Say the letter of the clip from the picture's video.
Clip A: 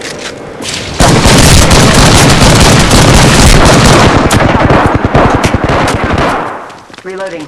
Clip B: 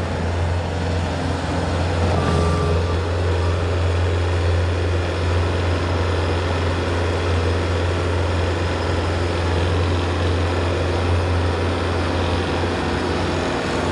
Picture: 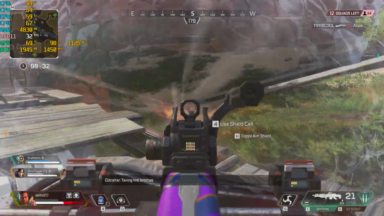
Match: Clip A